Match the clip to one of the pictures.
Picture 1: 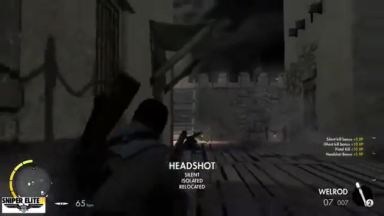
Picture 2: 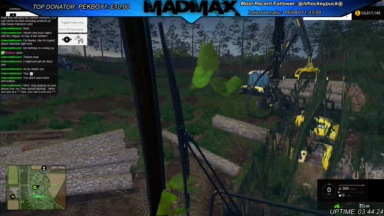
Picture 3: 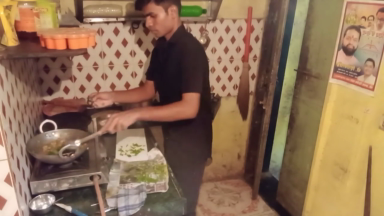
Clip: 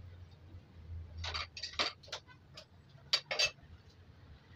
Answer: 3